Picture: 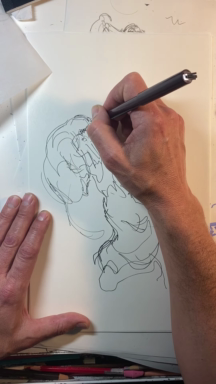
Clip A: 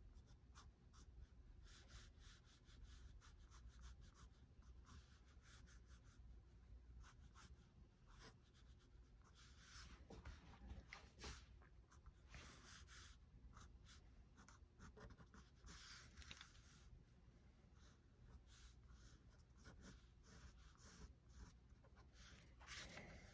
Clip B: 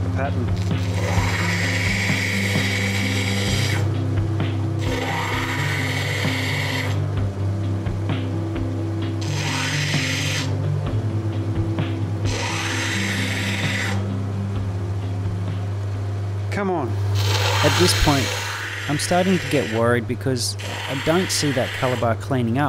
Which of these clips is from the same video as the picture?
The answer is A